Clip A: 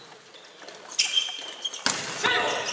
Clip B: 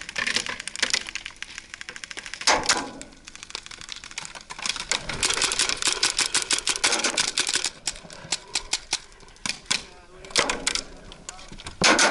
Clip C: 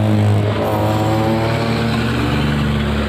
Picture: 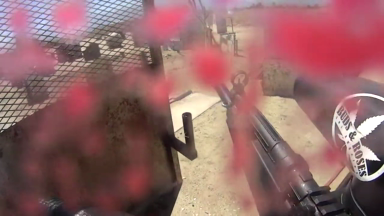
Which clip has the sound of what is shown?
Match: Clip B